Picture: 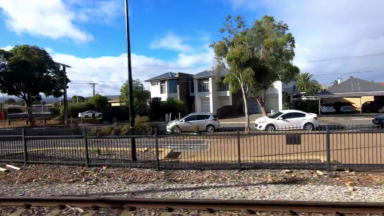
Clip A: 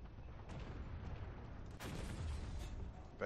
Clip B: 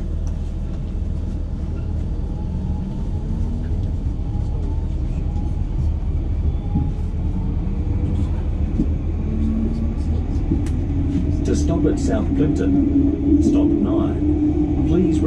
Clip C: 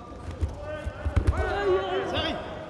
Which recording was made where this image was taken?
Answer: B